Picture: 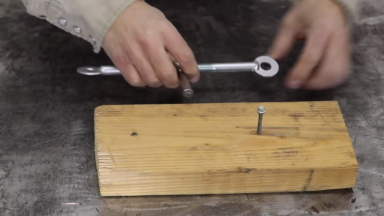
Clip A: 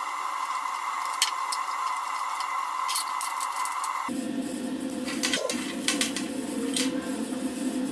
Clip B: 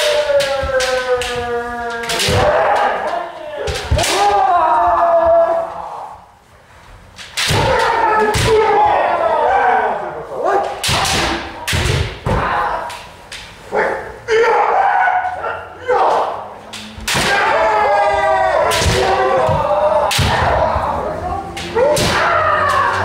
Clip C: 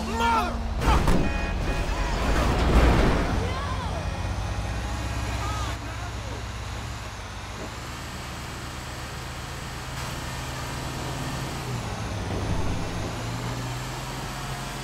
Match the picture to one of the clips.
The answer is A